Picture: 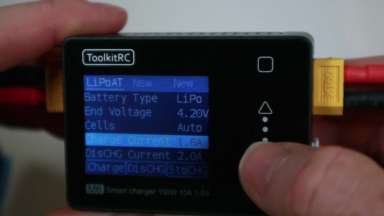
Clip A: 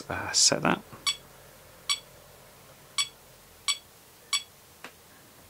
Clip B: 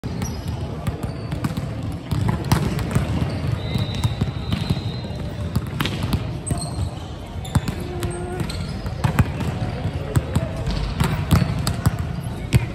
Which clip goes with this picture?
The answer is A